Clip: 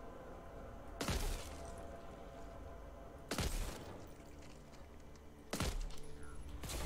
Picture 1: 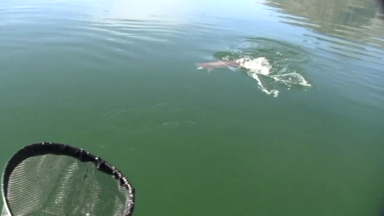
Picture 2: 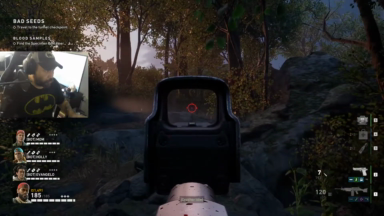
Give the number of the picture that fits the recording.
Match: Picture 2